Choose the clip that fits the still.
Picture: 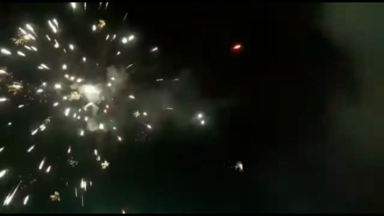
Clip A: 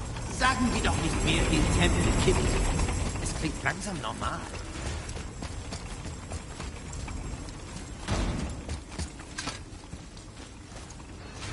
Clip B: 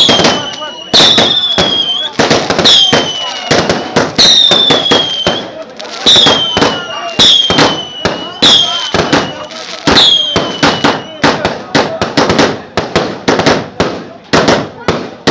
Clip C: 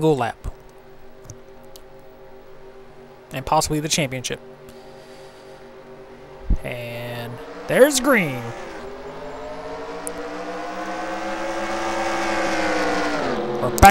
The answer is B